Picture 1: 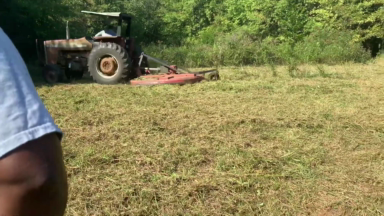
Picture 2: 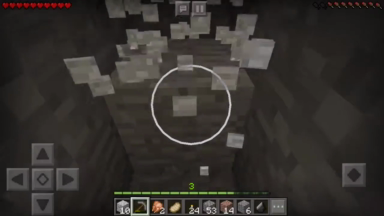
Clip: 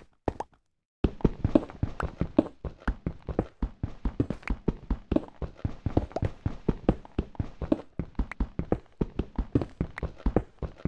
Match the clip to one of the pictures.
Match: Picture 2